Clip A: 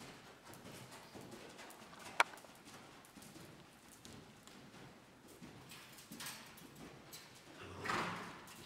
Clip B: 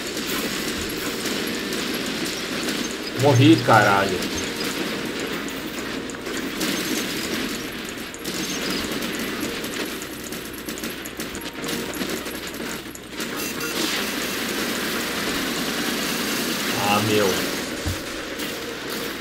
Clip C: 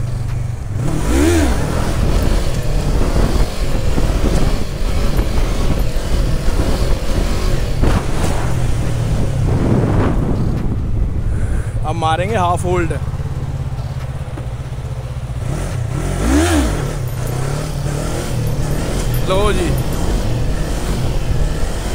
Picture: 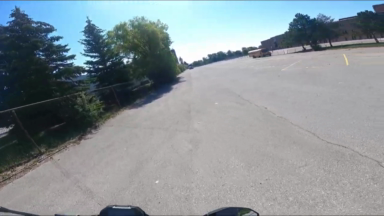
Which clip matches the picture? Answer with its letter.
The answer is C